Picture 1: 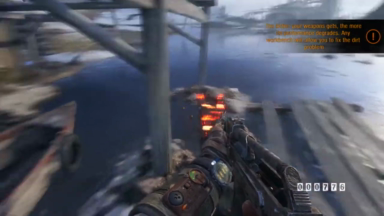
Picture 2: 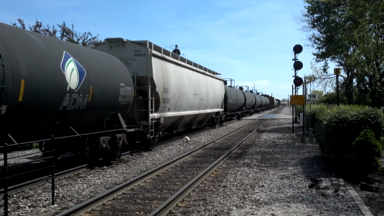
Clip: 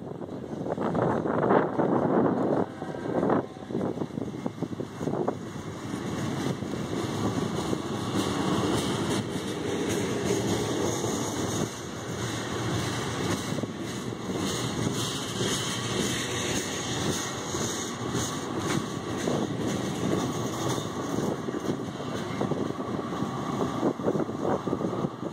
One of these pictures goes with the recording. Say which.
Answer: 2